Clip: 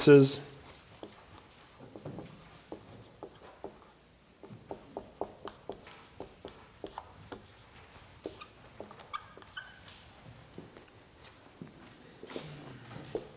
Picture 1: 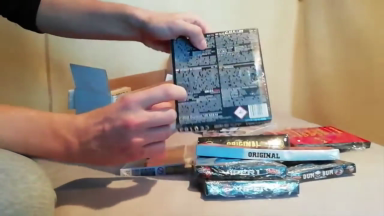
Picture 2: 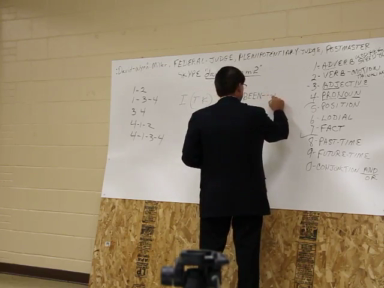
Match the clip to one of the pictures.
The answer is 2